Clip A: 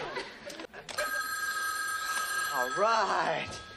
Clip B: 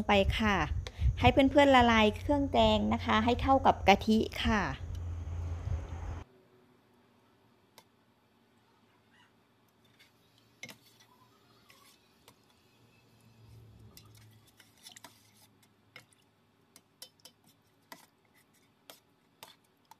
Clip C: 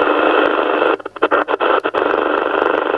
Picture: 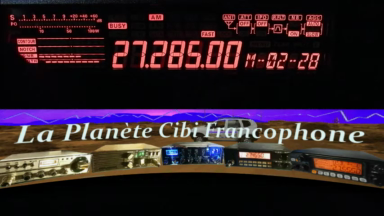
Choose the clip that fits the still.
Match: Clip C